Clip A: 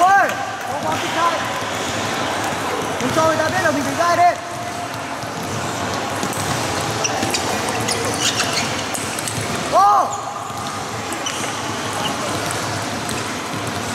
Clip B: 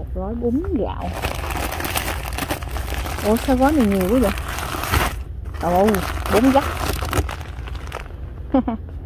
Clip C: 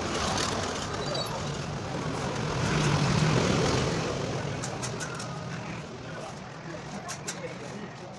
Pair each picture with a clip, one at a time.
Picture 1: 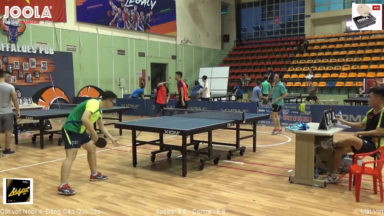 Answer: A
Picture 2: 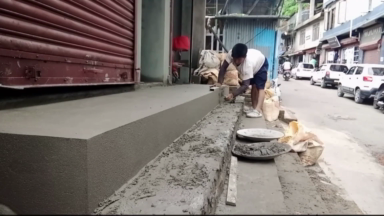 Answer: C